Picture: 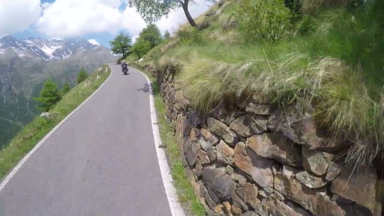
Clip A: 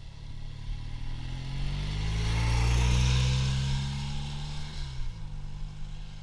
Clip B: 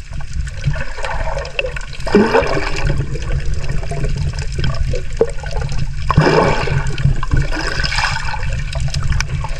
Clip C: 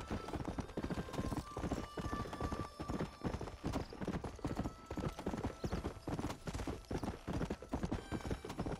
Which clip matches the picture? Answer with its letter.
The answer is A